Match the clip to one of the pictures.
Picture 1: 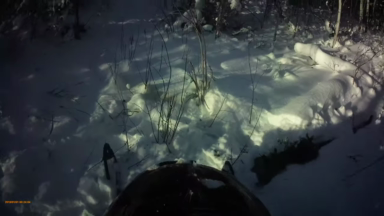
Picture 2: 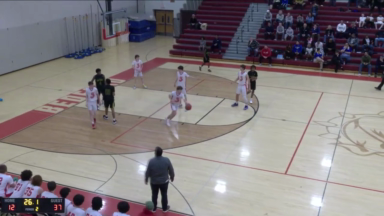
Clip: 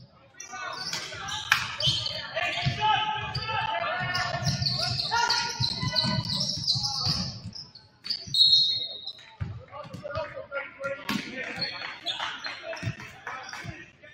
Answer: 2